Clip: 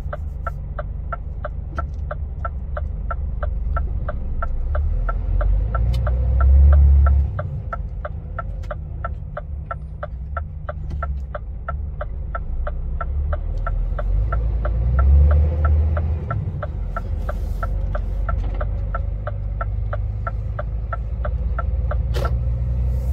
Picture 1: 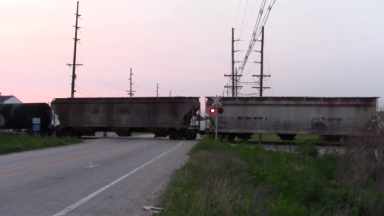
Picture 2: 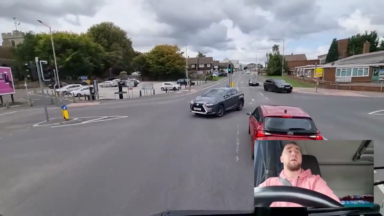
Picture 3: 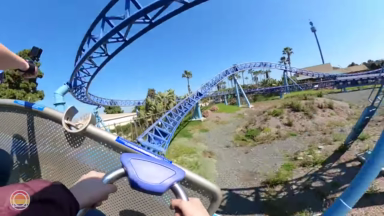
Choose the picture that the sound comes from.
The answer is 2